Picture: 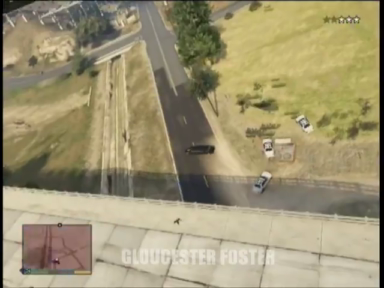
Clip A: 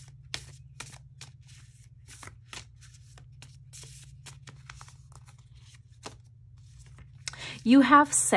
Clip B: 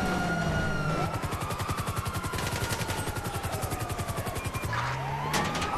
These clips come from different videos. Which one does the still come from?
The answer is B